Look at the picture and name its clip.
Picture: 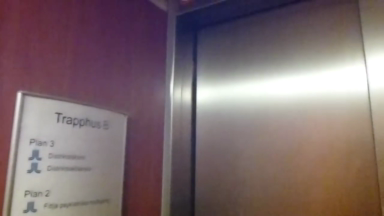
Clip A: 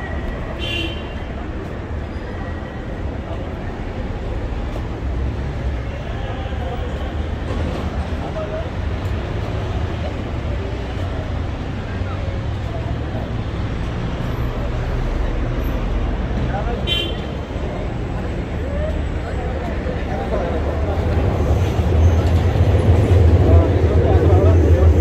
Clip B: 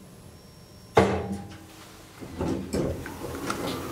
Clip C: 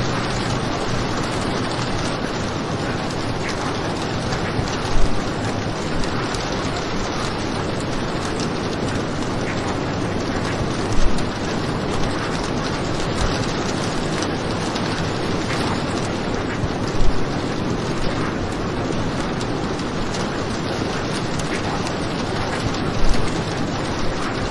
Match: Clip B